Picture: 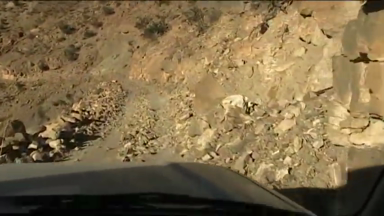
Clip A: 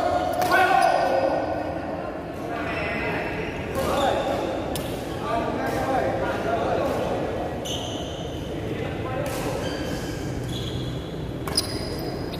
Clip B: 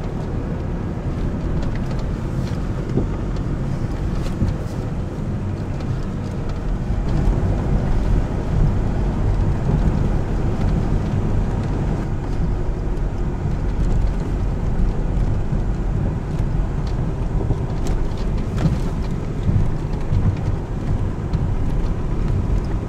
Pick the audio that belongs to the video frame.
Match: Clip B